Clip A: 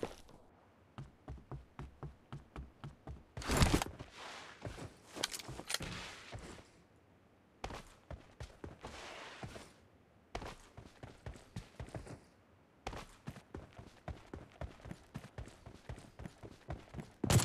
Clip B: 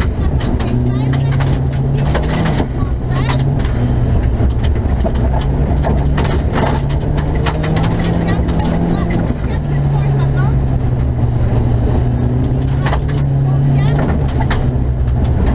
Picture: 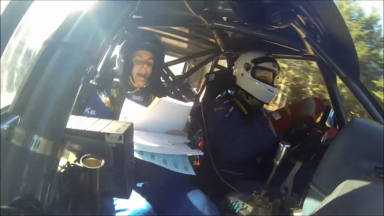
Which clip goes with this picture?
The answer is B